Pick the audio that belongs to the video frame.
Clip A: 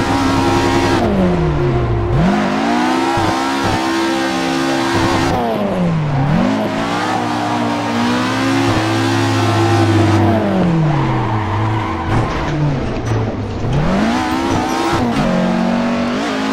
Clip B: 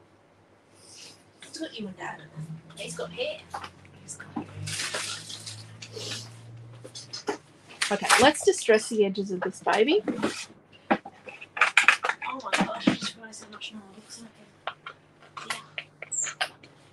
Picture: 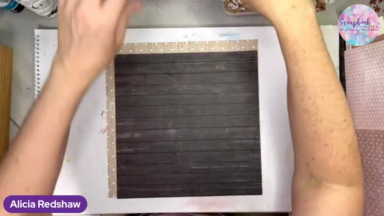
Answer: B